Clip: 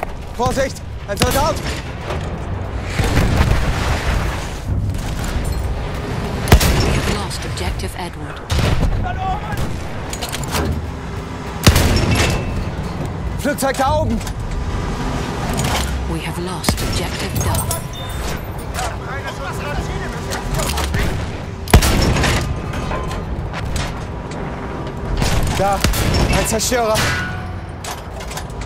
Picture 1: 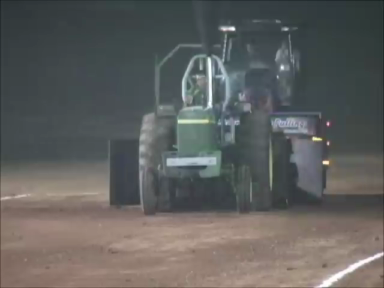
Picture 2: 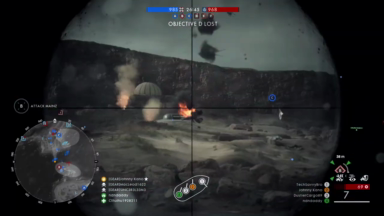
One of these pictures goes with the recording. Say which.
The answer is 2